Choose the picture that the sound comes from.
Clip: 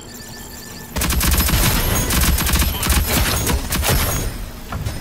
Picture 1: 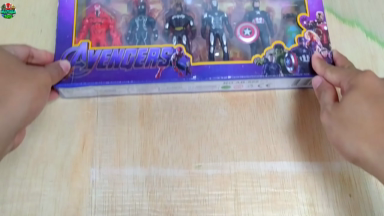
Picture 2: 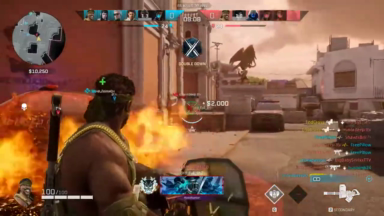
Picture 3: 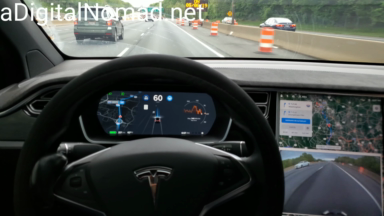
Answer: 2